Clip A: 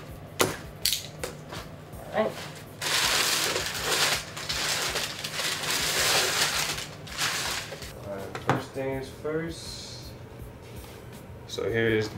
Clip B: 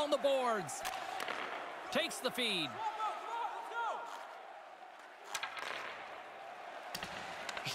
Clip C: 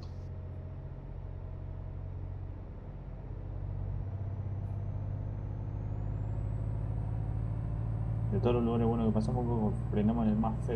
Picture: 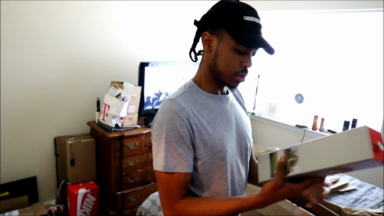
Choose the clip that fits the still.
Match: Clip A